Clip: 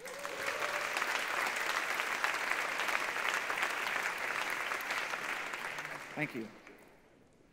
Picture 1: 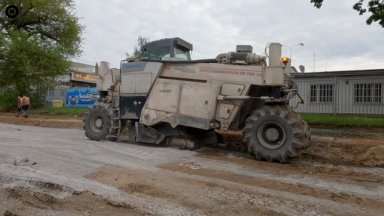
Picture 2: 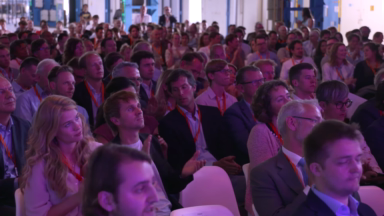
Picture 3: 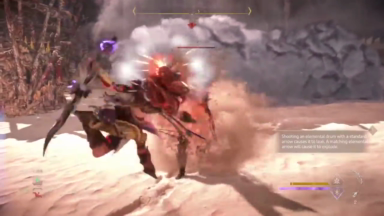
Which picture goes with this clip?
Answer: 2